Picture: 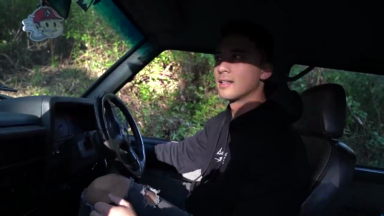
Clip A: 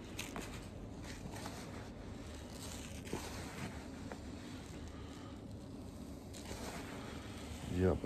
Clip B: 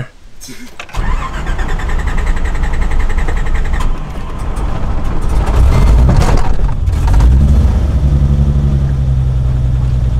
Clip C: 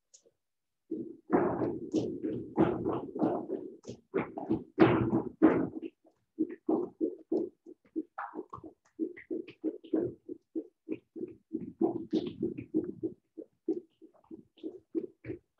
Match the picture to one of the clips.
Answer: B